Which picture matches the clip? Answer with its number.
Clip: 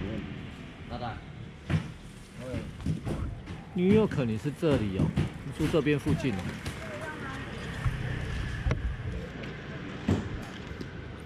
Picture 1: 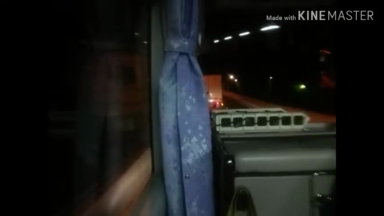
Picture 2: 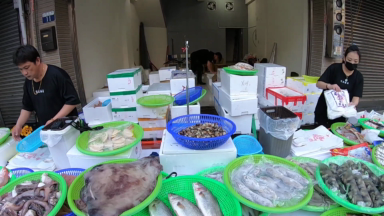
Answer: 2